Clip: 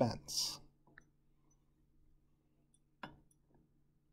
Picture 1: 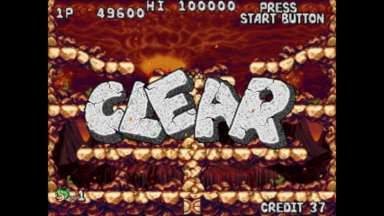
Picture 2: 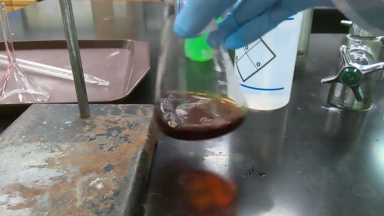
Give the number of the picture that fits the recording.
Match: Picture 2